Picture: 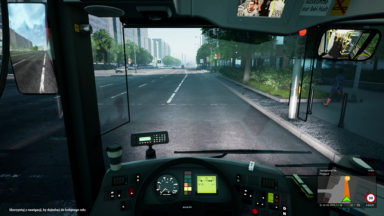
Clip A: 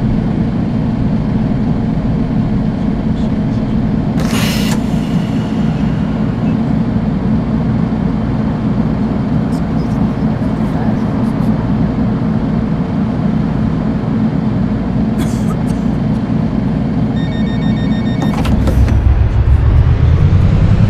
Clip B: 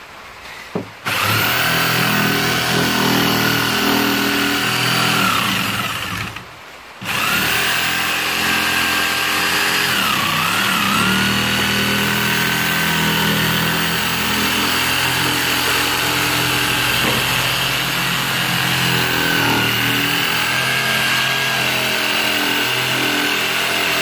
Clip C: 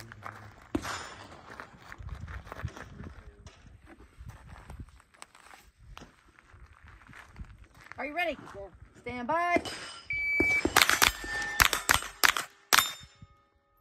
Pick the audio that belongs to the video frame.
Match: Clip A